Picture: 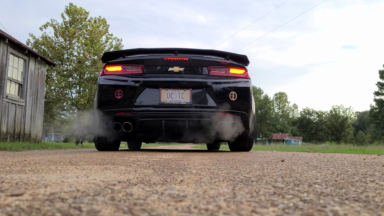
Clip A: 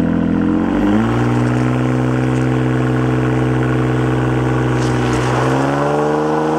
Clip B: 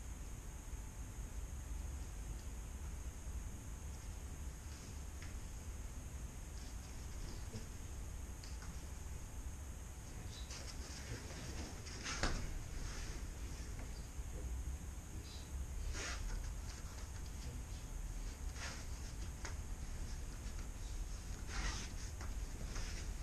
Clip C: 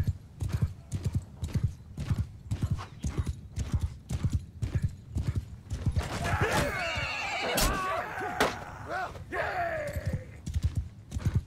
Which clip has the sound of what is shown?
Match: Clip A